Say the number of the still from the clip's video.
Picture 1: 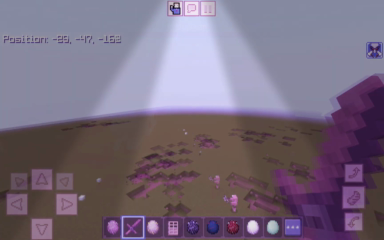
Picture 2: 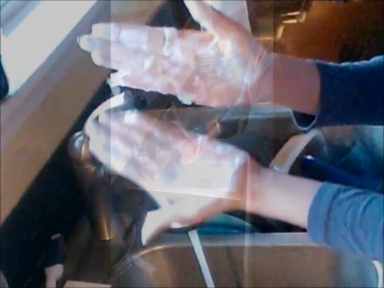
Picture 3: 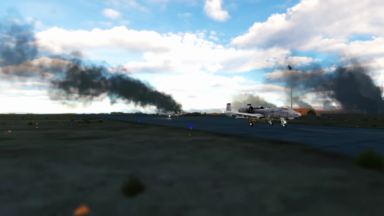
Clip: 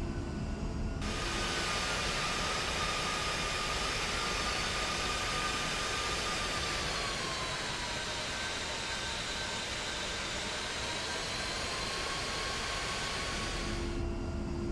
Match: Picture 3